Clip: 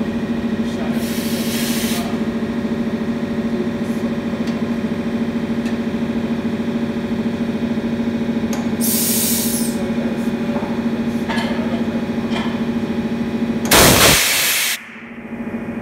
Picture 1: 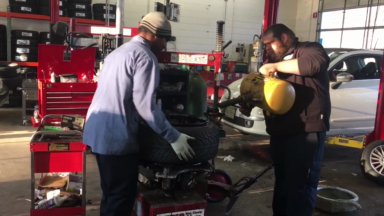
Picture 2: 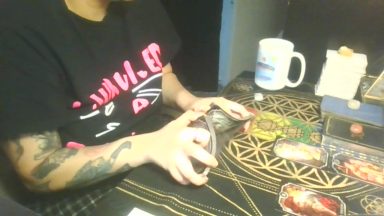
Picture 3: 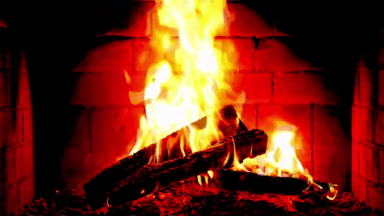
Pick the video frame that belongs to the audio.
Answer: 1